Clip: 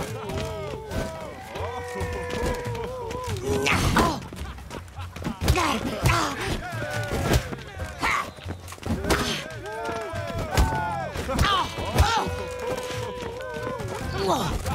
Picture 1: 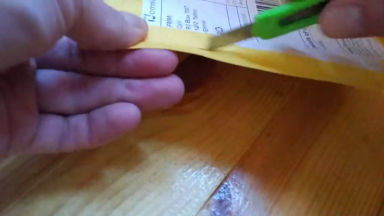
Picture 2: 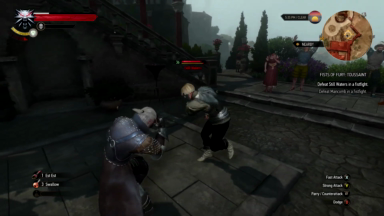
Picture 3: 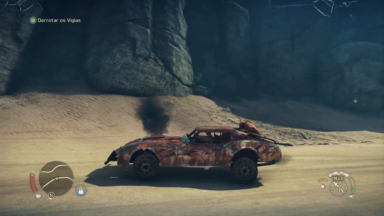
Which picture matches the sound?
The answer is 2